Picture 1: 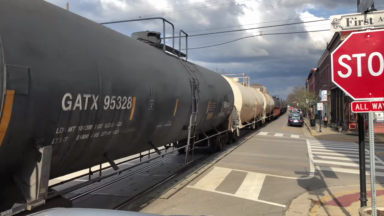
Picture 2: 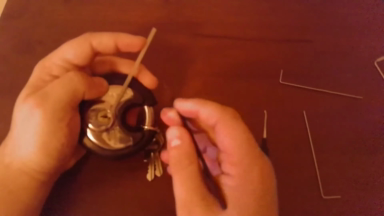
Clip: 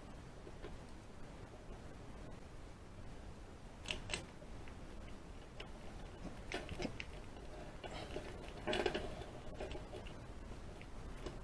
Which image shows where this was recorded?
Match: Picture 2